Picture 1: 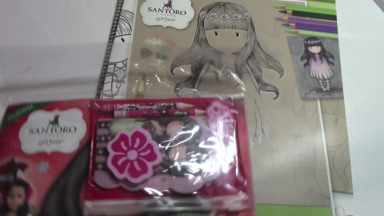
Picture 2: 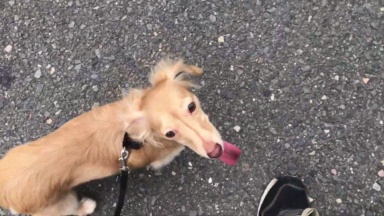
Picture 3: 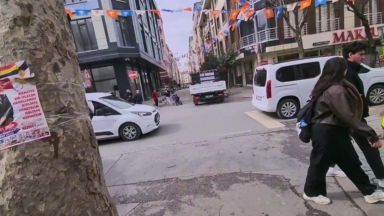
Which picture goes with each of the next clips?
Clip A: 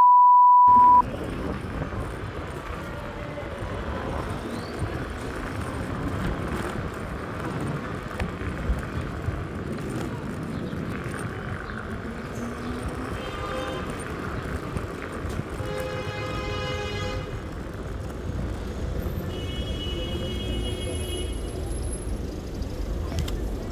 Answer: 3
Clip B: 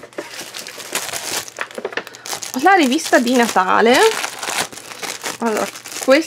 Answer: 1